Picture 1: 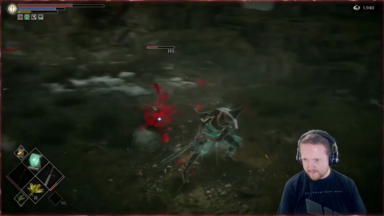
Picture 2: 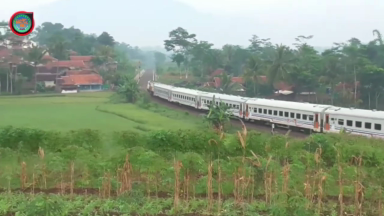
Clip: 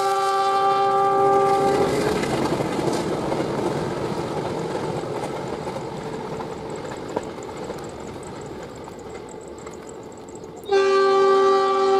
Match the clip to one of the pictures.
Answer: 2